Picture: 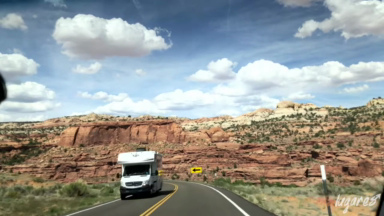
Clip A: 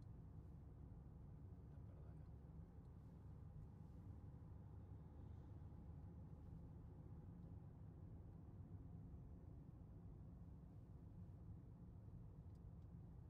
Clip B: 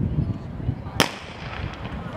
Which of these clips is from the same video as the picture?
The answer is A